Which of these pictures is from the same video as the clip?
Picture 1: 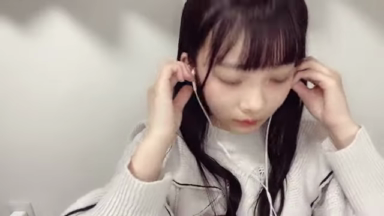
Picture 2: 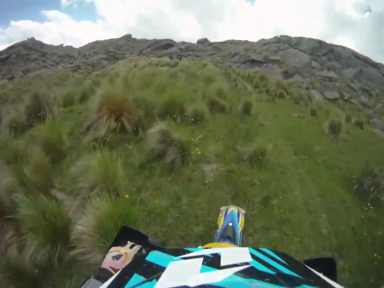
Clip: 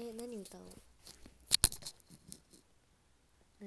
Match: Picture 1